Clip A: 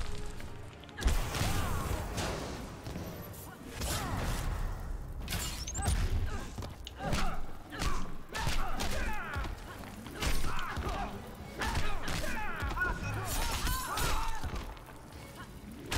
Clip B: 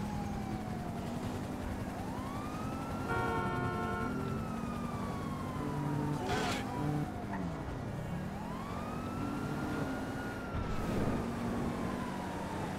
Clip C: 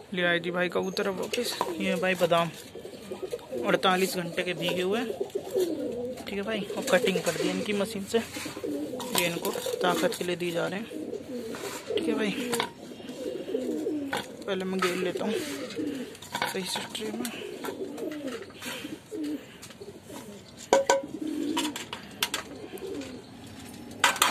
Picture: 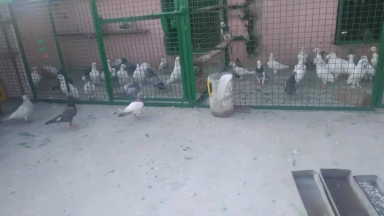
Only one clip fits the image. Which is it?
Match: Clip C